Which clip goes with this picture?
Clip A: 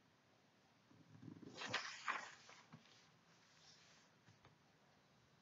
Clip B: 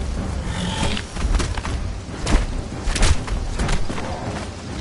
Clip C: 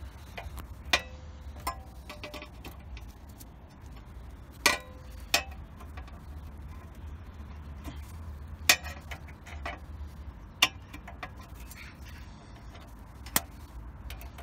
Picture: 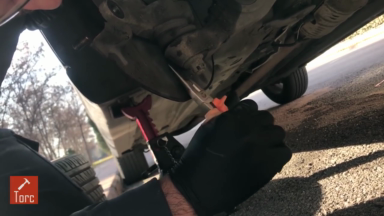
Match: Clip C